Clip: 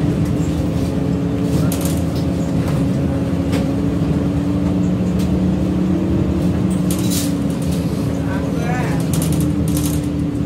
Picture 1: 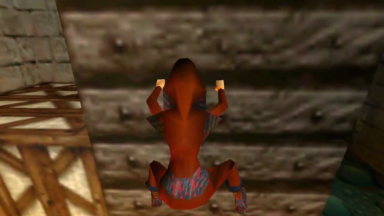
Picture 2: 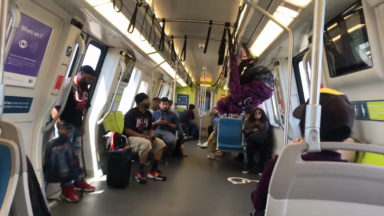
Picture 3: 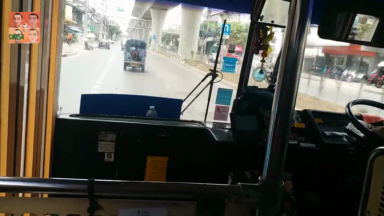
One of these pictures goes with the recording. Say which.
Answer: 3